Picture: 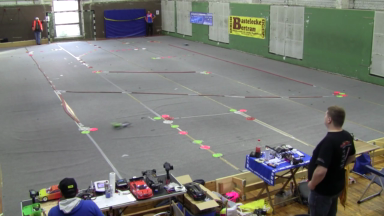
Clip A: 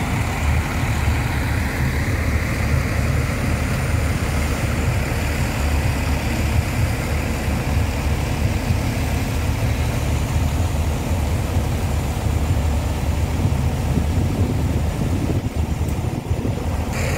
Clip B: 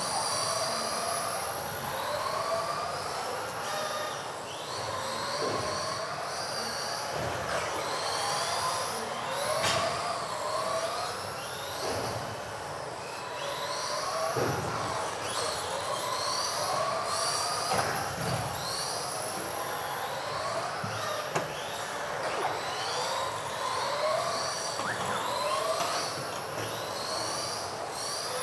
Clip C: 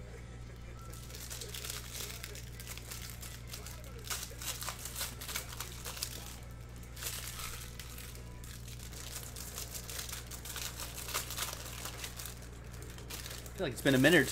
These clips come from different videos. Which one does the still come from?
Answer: B